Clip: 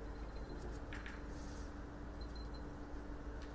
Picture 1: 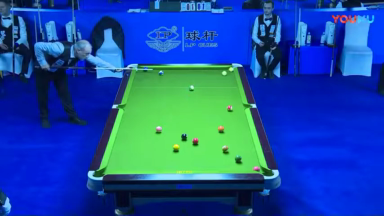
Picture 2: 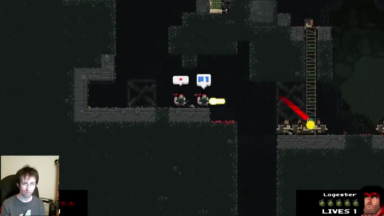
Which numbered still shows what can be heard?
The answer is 1